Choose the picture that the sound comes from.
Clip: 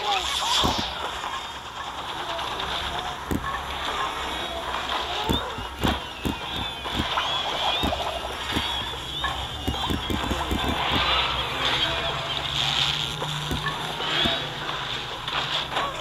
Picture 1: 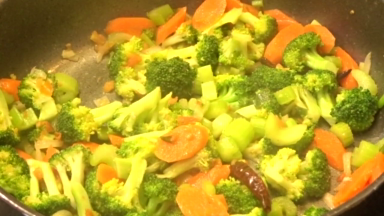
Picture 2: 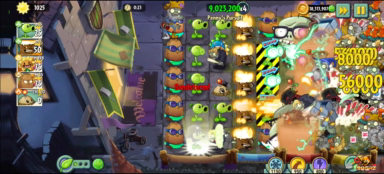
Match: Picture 2